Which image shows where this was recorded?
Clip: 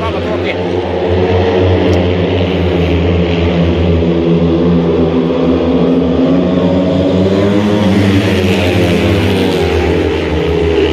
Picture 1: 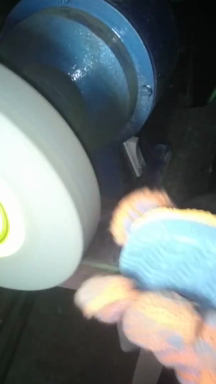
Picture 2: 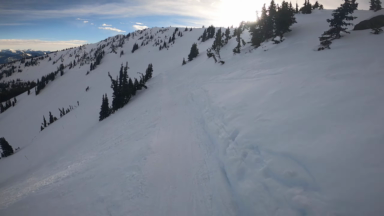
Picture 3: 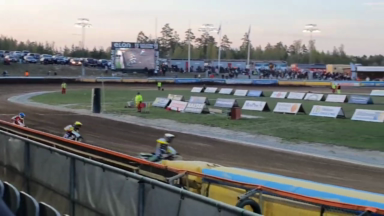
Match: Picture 3